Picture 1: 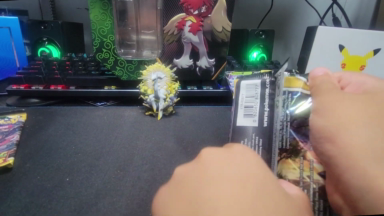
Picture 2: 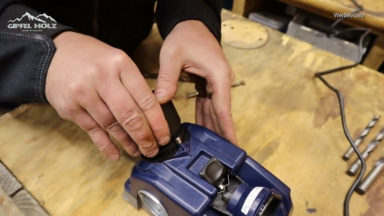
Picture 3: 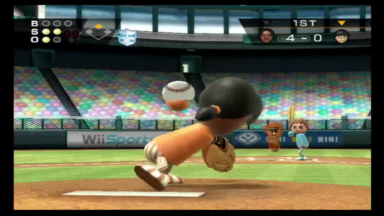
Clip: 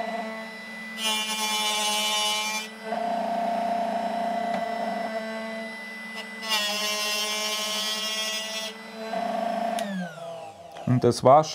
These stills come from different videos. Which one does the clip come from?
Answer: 2